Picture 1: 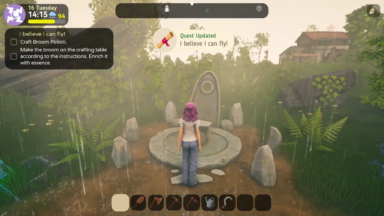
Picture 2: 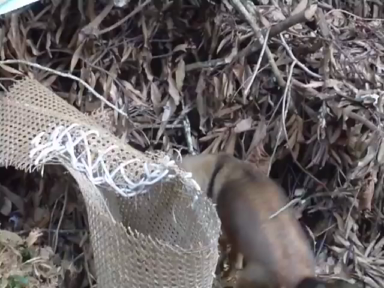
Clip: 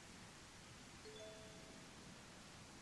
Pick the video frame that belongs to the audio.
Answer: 1